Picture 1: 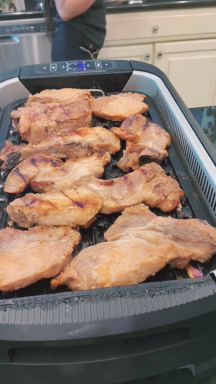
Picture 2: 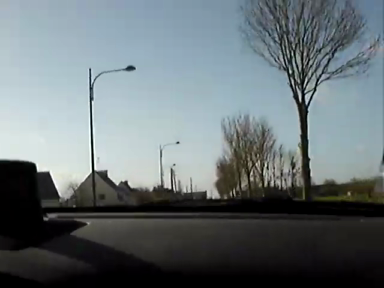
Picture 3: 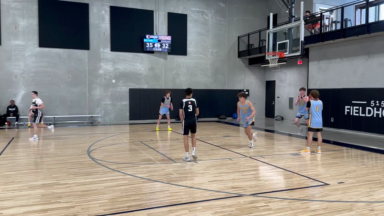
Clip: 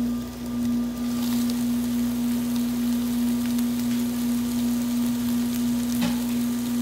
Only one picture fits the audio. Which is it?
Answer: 1